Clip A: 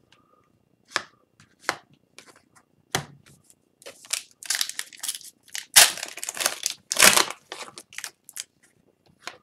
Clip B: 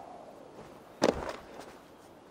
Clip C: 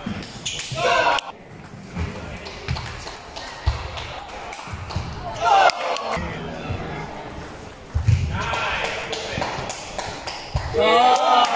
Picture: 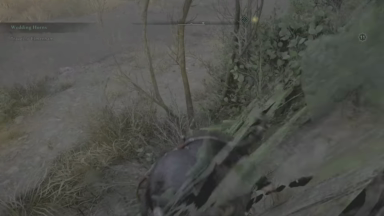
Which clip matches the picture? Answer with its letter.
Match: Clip B